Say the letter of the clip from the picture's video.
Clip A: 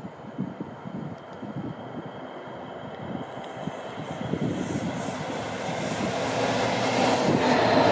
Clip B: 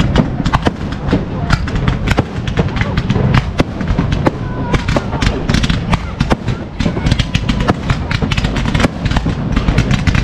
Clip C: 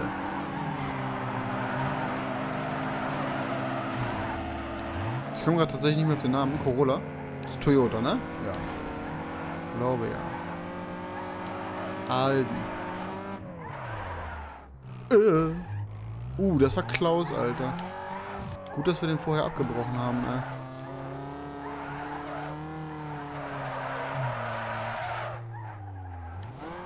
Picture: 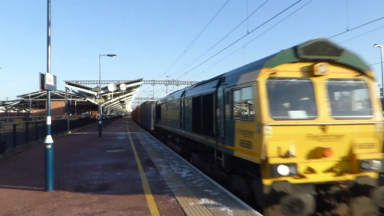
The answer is A